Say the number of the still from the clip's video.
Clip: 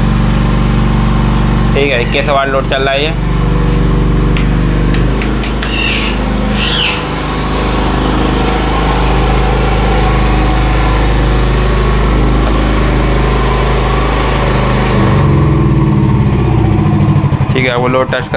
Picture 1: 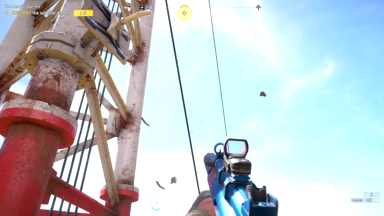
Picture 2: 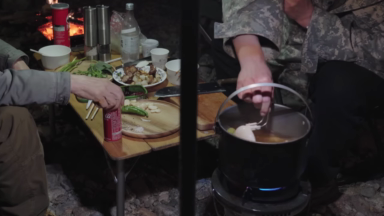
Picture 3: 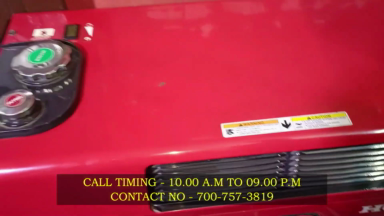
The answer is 3